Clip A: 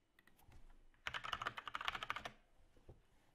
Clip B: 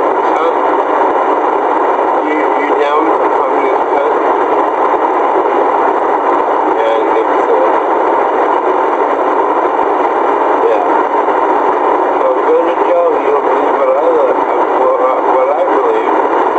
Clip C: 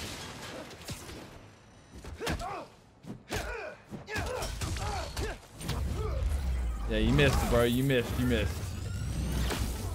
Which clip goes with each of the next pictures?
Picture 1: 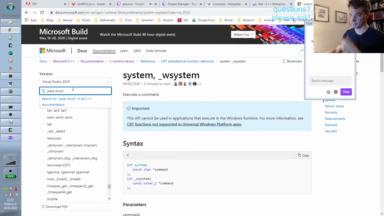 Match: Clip A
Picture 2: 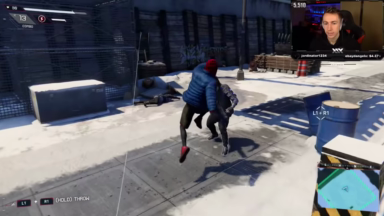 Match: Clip C